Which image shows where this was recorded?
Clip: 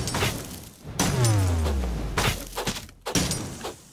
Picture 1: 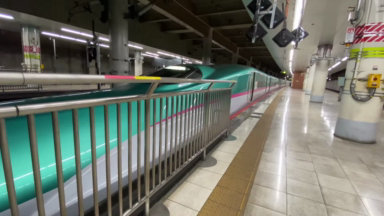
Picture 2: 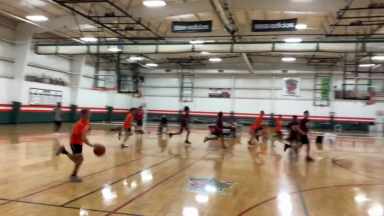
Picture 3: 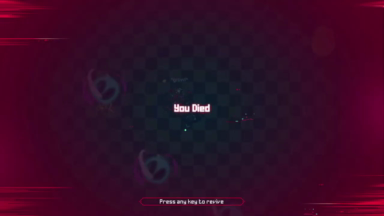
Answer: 3